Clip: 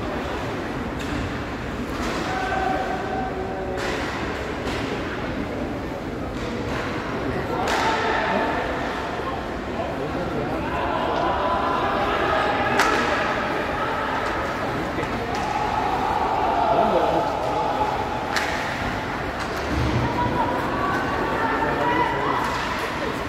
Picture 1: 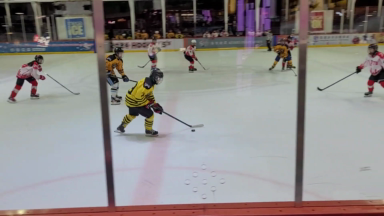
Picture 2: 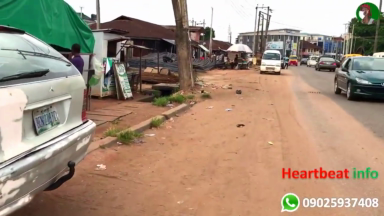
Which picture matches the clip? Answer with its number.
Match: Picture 1